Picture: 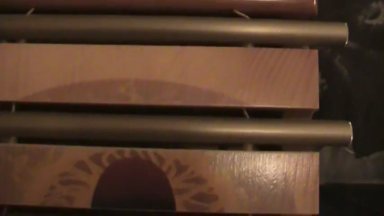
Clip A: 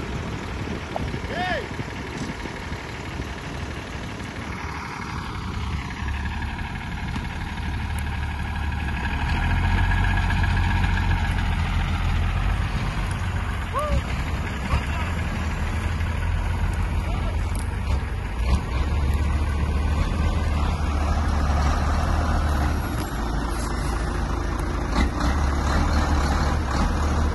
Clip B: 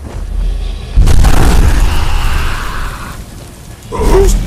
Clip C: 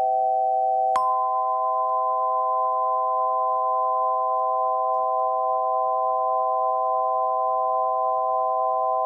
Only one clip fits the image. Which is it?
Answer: C